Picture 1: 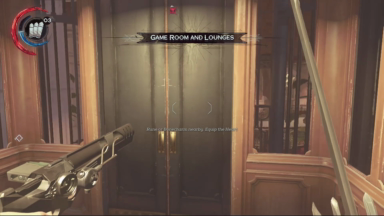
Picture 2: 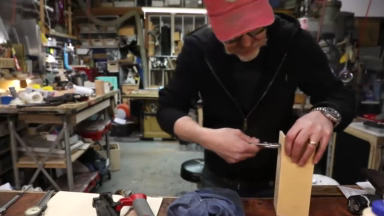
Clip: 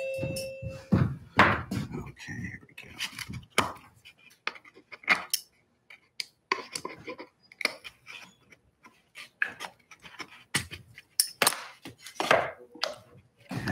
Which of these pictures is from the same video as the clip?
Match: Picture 2